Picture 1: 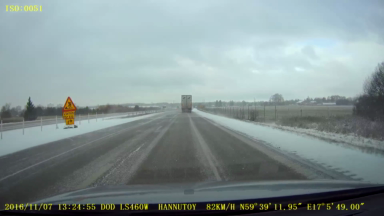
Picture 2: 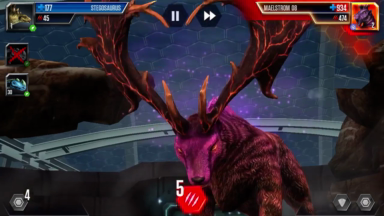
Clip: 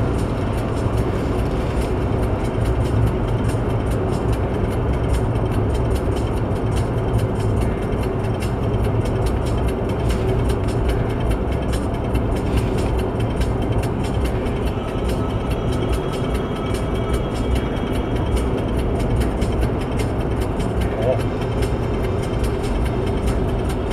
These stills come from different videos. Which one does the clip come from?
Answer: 1